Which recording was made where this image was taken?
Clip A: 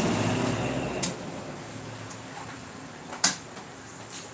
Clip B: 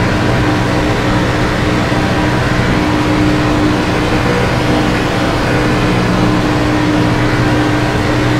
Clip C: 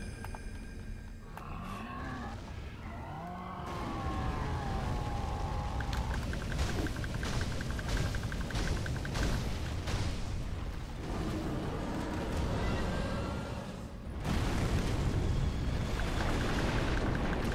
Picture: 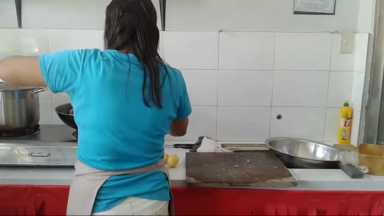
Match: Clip A